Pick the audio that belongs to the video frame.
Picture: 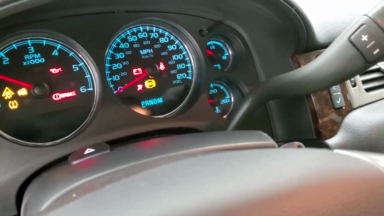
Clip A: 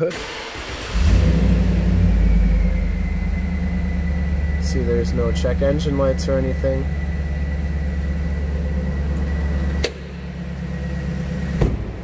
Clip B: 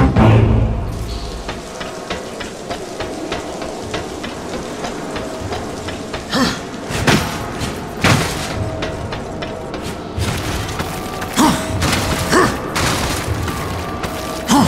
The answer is A